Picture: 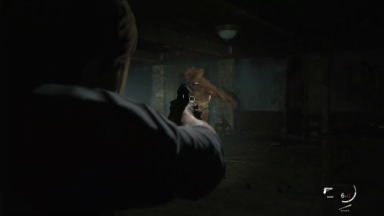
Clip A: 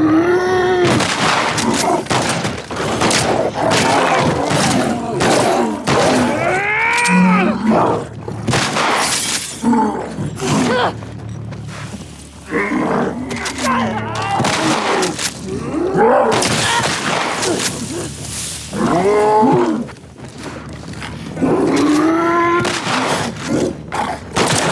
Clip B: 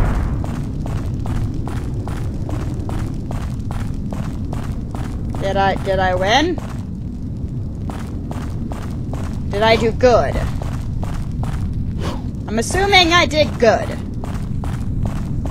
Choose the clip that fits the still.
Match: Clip A